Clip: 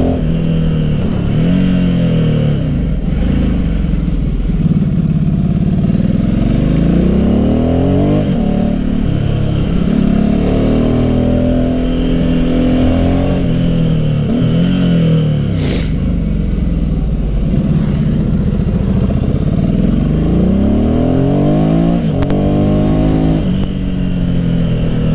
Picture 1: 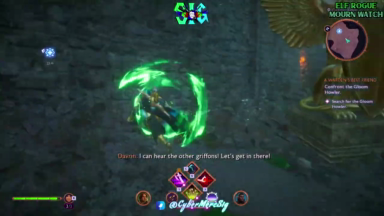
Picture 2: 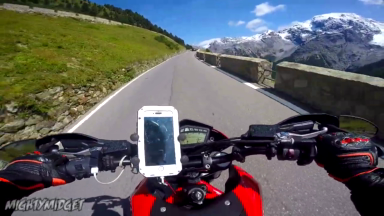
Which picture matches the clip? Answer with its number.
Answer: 2